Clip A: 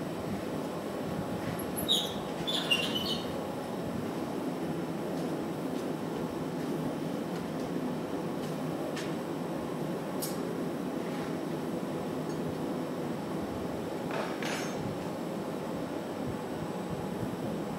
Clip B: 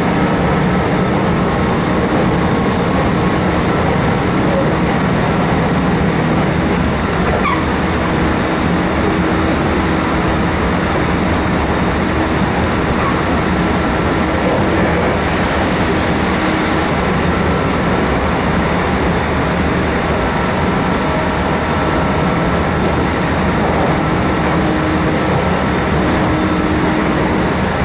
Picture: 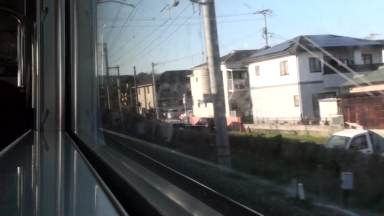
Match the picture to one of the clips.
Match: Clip B